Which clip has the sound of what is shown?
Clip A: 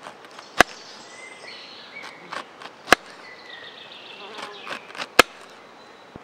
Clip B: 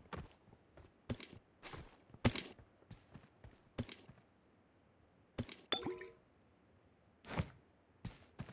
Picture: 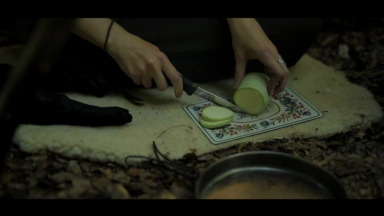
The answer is A